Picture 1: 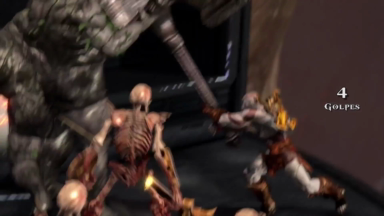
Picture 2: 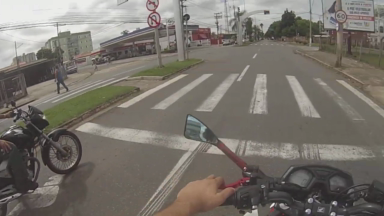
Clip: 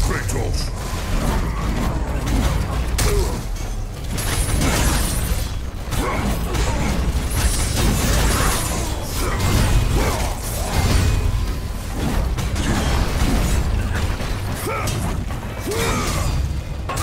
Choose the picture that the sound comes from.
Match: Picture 1